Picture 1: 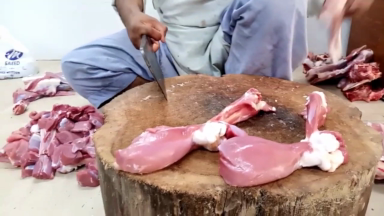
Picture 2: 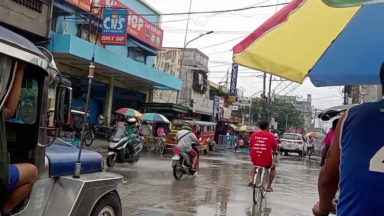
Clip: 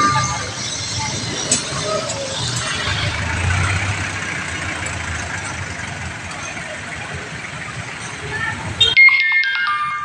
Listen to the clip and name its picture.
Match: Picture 2